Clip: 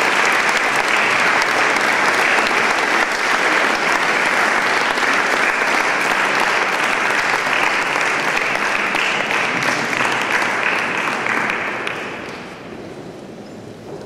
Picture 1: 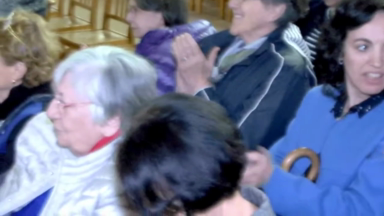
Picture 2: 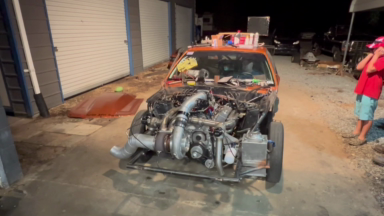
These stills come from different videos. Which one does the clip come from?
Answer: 1